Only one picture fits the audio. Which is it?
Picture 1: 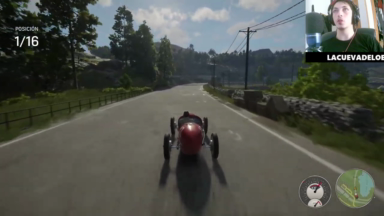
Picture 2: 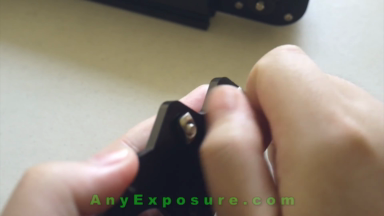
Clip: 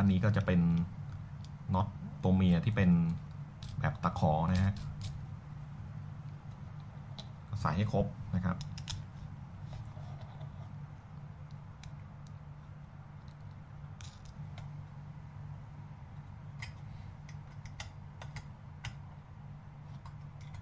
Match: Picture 2